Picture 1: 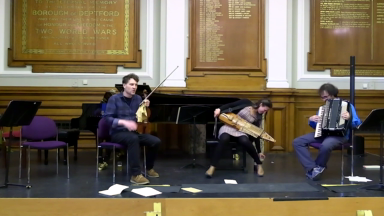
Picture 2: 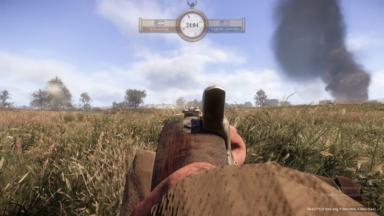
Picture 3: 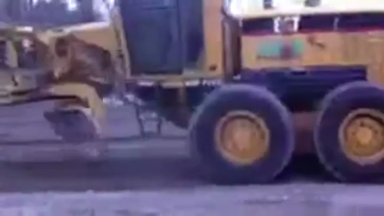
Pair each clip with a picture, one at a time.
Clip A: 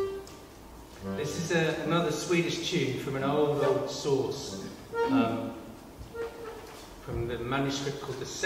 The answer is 1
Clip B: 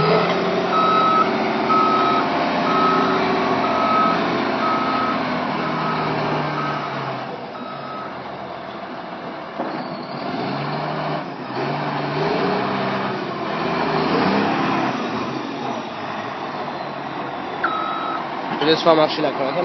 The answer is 3